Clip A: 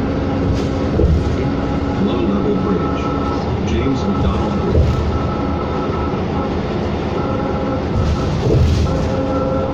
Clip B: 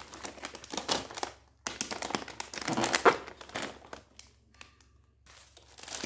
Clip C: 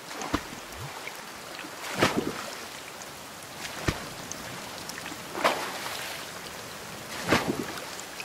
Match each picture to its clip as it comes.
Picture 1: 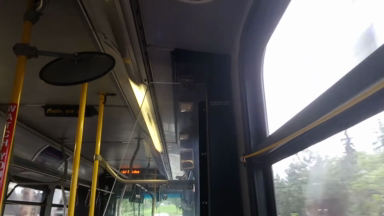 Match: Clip A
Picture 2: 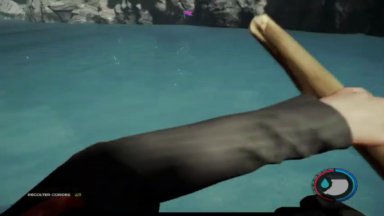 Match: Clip C